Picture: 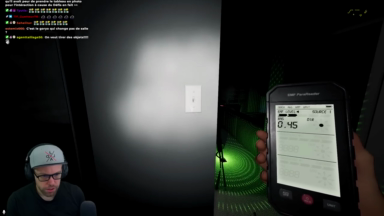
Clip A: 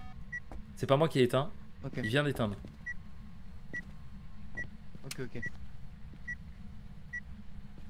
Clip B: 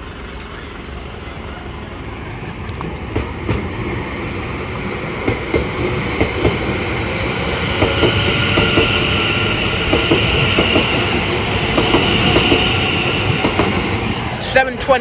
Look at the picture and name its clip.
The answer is A